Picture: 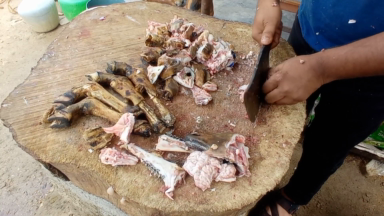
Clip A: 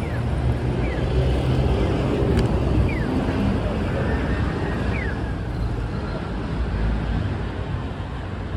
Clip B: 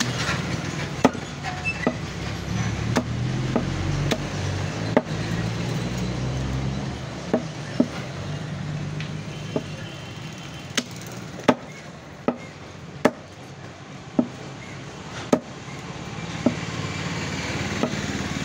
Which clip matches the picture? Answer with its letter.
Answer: B